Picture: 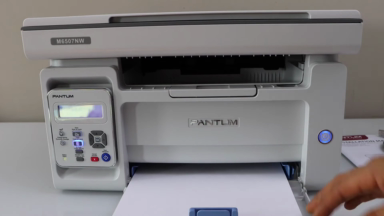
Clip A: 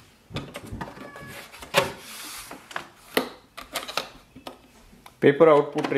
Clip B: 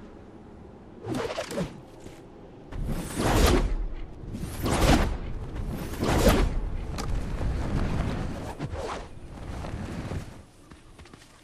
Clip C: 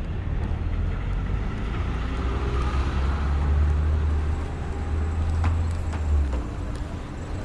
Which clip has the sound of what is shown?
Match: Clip A